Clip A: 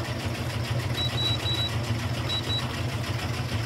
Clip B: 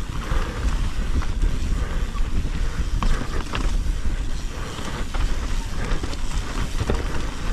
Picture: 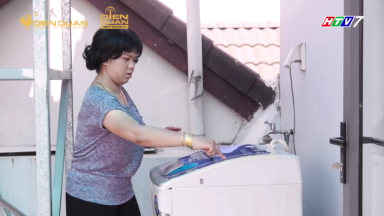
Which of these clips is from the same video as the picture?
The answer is A